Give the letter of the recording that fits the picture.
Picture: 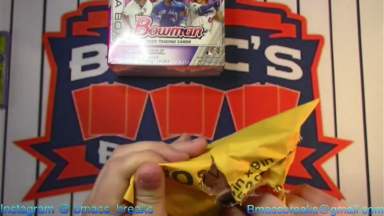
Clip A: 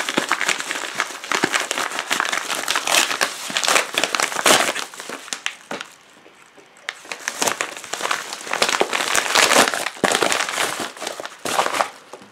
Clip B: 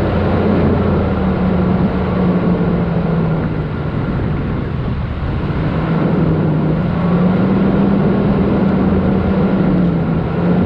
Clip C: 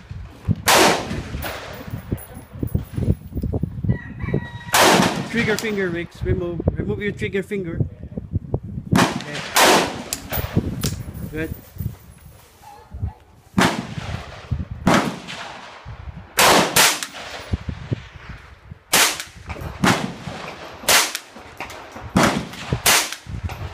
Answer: A